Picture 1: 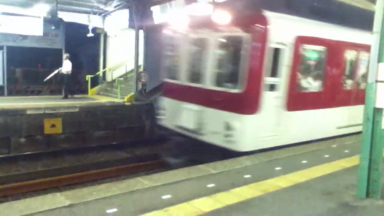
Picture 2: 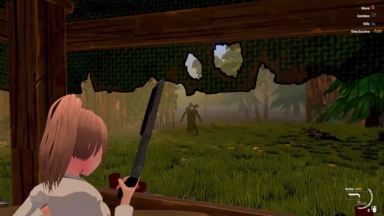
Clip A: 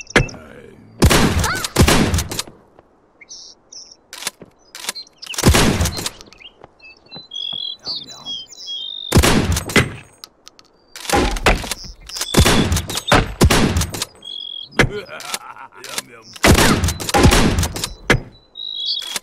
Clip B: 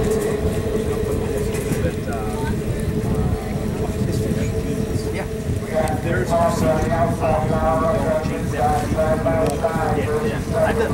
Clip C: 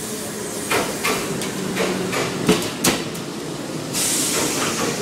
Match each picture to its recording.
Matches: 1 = C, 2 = A